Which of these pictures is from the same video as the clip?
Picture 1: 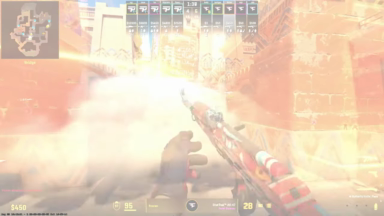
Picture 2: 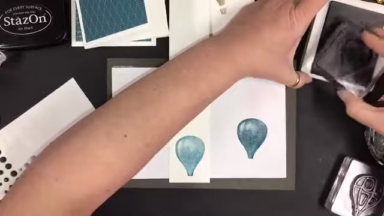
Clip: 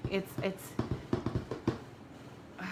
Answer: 2